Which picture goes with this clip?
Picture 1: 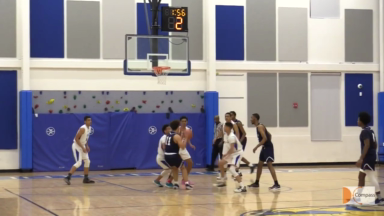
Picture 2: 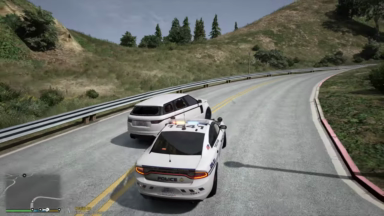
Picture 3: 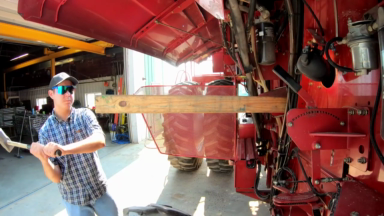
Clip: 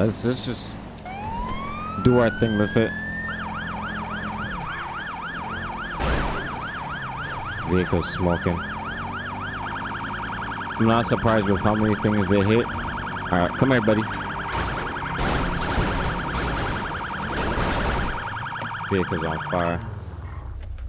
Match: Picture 2